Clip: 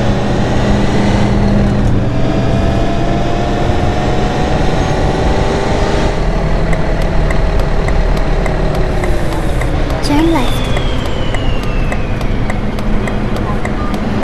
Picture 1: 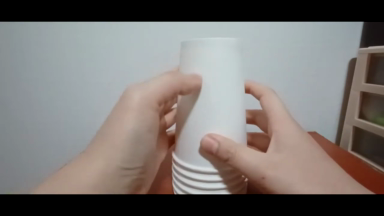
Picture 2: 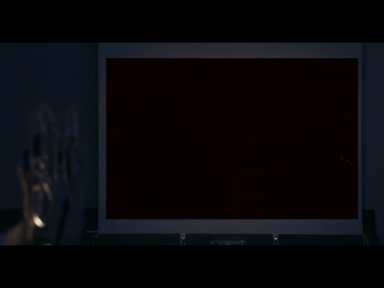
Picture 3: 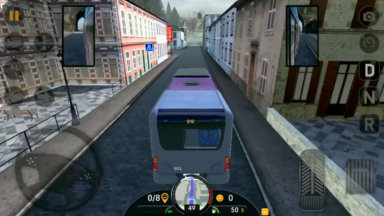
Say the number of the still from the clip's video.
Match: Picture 3